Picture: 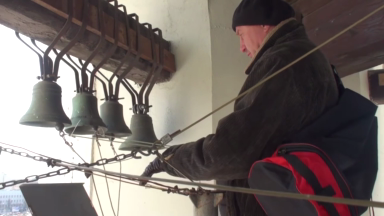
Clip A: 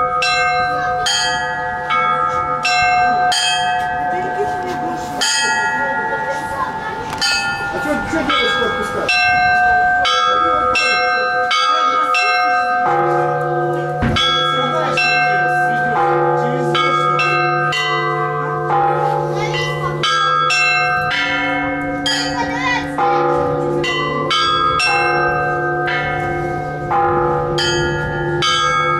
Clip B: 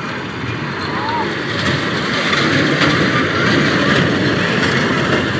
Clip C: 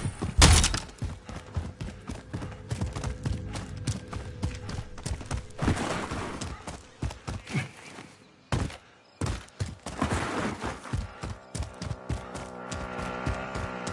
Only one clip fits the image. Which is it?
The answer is A